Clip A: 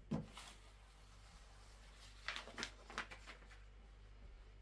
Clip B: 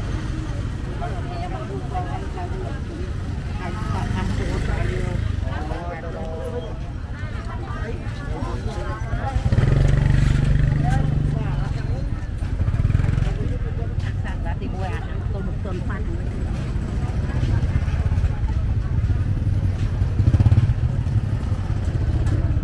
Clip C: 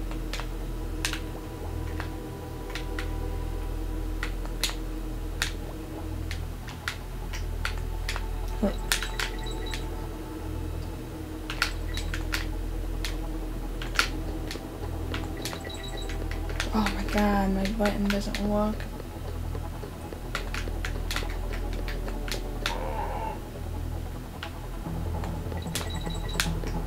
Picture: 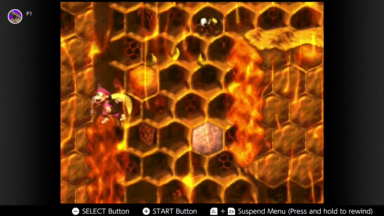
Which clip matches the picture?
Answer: C